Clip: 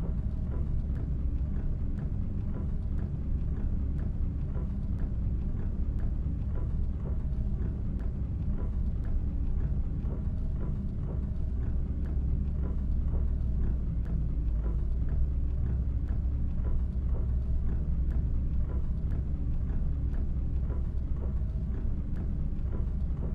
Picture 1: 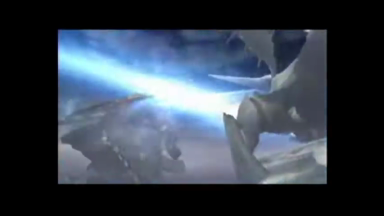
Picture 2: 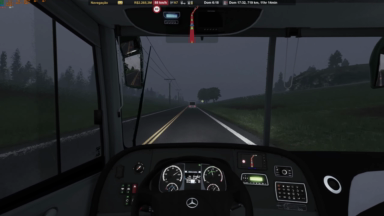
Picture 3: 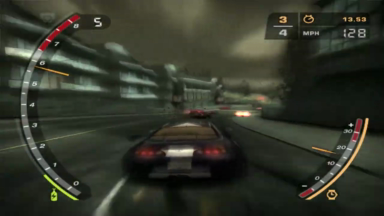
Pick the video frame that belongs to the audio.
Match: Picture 2